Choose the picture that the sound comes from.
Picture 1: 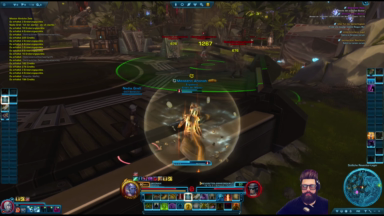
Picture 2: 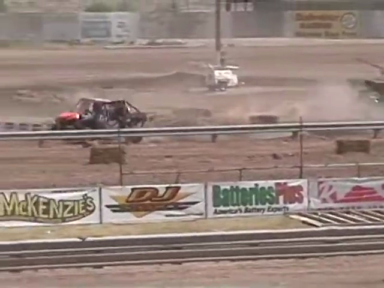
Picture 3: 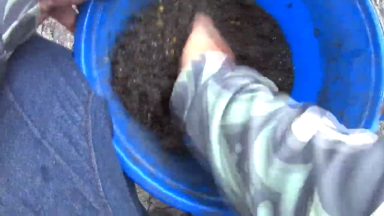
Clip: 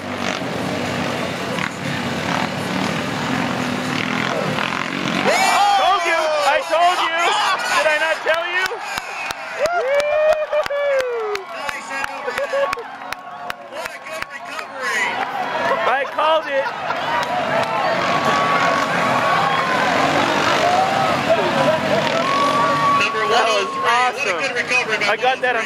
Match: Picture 2